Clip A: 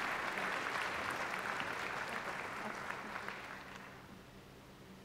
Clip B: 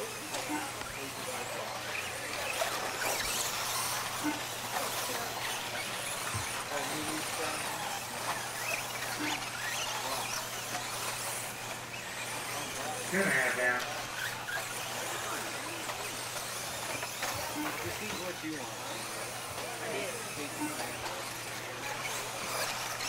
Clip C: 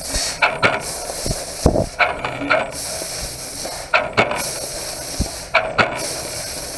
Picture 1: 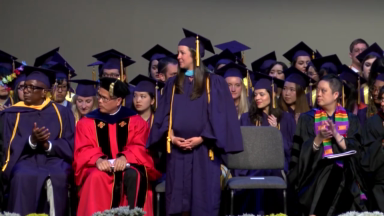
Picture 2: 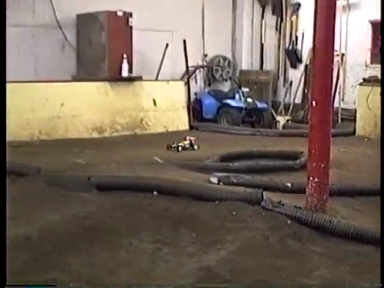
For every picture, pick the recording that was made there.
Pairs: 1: A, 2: B